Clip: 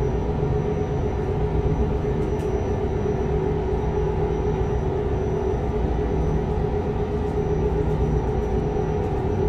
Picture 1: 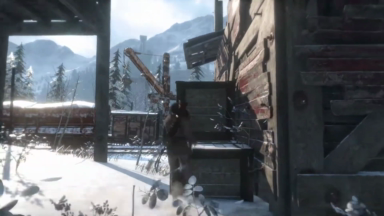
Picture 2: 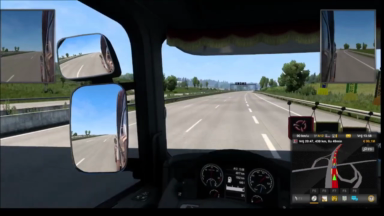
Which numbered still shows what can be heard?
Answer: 2